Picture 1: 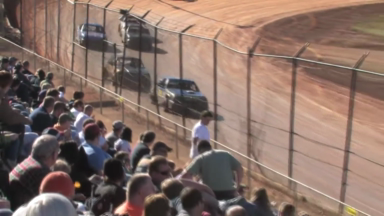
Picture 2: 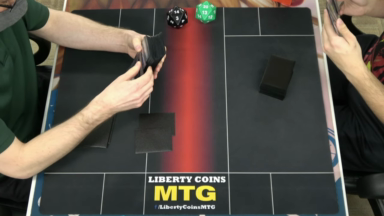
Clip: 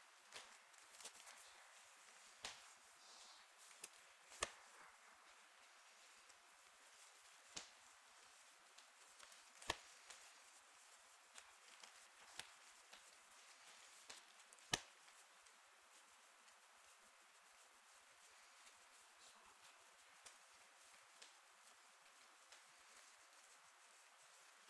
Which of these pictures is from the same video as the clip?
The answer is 2